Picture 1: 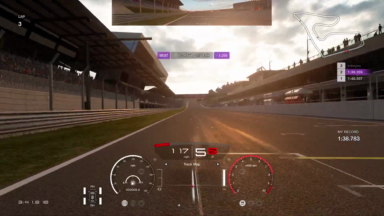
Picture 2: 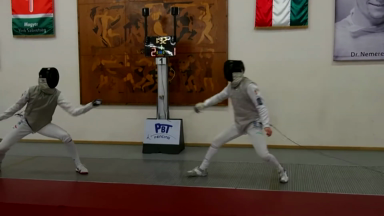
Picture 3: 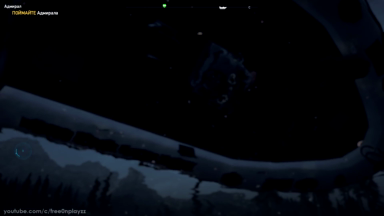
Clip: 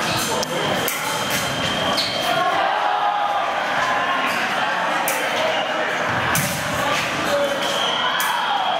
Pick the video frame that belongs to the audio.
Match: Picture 2